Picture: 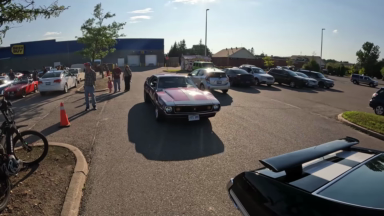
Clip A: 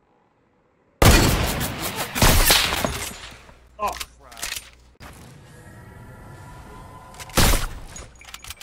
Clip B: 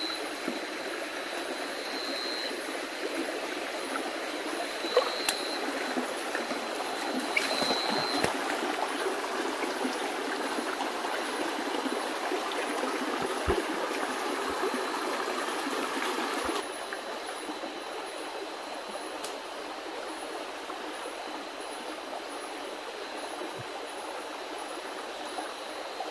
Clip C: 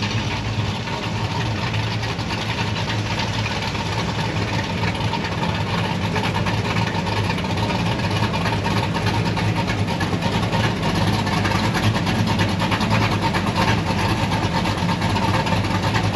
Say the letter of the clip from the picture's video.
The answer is C